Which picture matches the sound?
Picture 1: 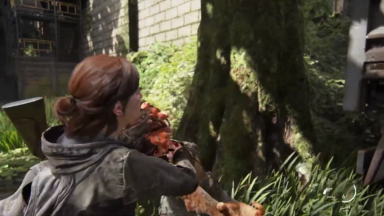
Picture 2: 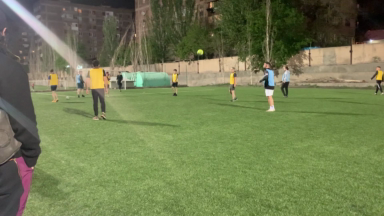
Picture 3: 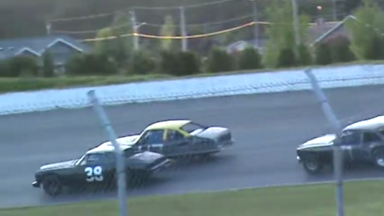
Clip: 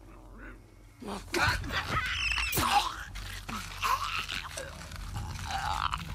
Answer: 1